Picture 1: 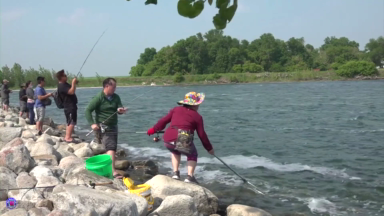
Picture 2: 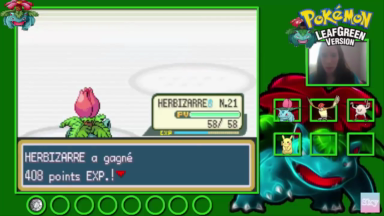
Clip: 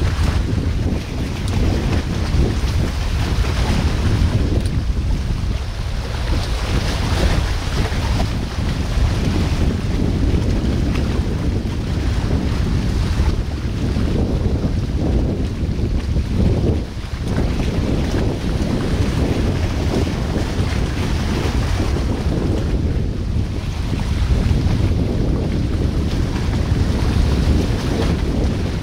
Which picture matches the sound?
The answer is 1